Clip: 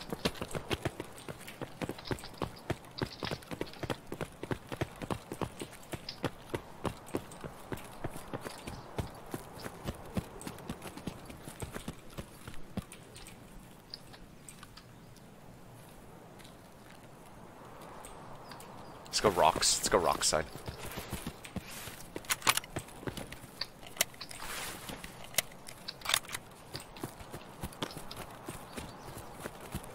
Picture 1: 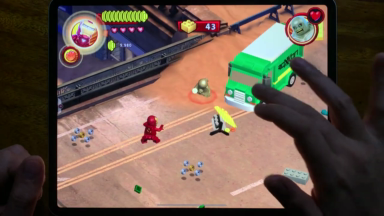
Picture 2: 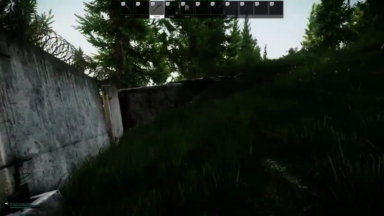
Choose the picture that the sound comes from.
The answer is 2